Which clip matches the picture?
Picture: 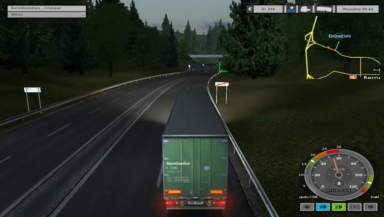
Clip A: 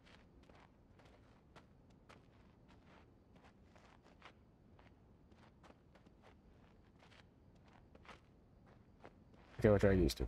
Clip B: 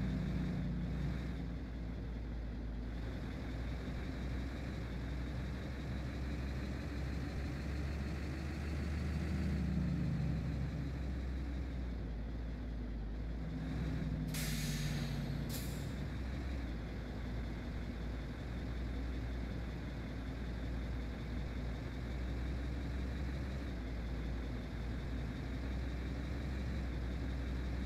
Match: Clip B